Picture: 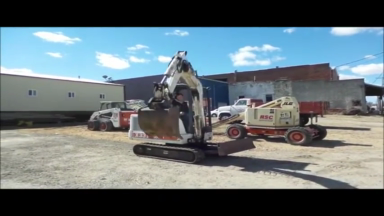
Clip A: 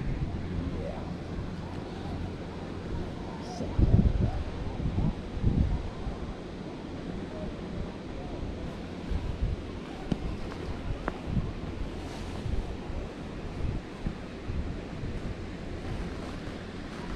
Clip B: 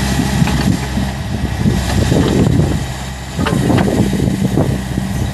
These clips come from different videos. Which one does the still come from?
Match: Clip B